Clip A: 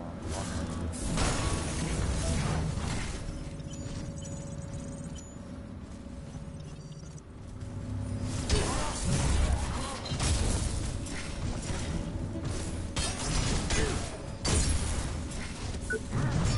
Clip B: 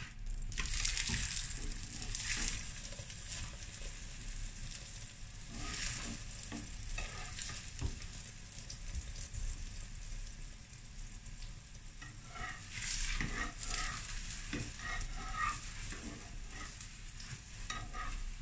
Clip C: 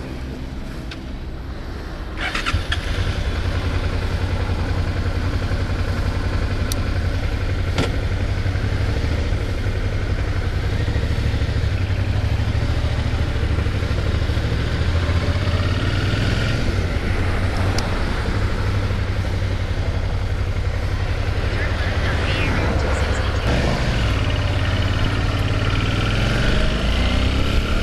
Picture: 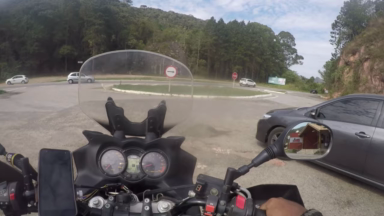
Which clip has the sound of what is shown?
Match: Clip C